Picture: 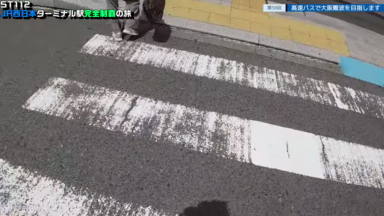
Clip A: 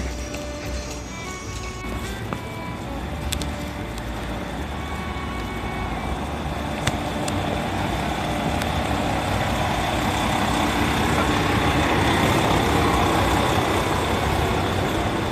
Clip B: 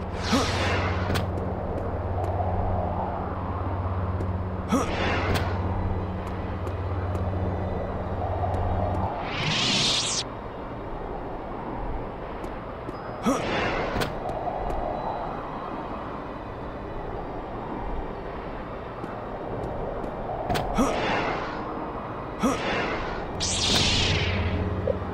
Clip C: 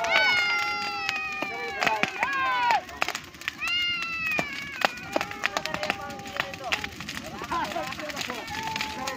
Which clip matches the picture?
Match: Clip A